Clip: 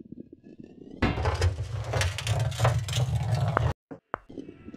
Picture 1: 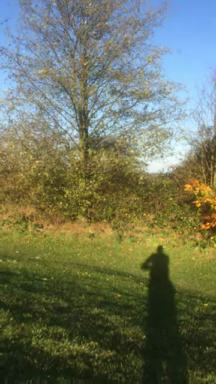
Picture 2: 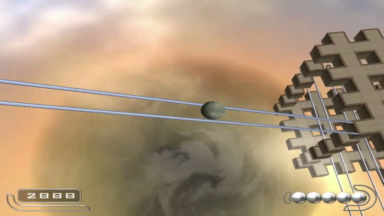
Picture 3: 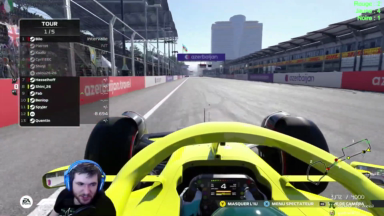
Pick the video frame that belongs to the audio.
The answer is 2